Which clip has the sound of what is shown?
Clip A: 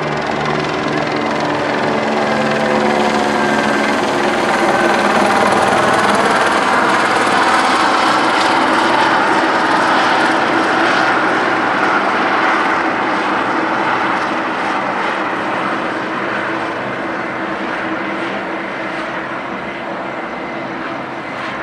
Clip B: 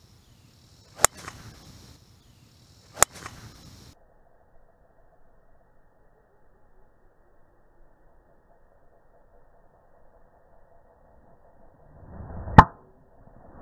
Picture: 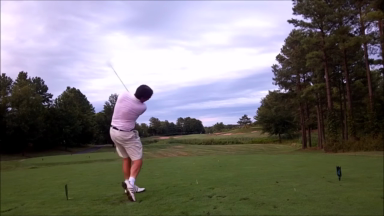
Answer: B